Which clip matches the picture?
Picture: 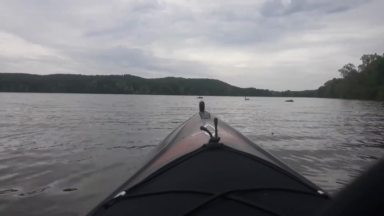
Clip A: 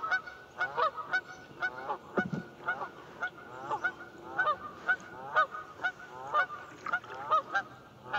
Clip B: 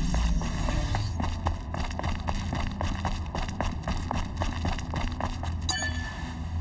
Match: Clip A